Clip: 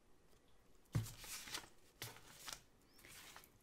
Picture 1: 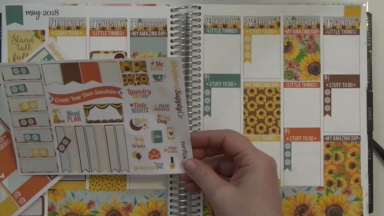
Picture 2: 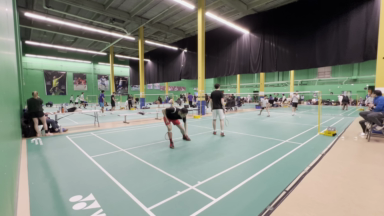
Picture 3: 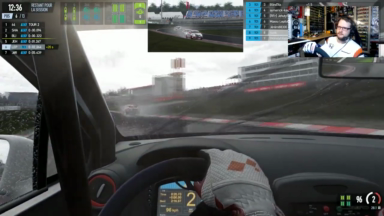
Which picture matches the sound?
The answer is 1